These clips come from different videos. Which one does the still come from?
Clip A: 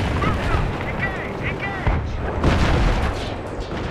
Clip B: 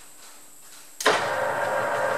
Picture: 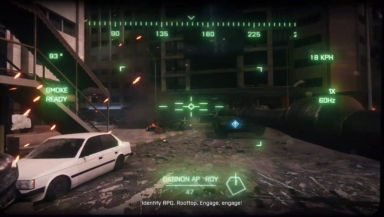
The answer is A